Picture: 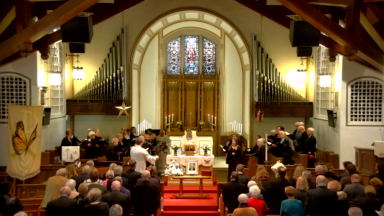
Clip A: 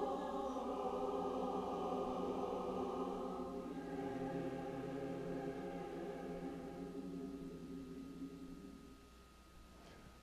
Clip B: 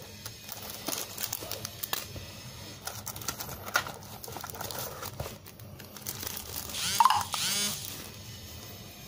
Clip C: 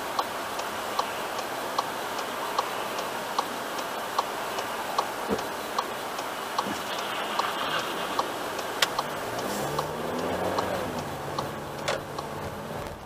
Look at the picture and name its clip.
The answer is A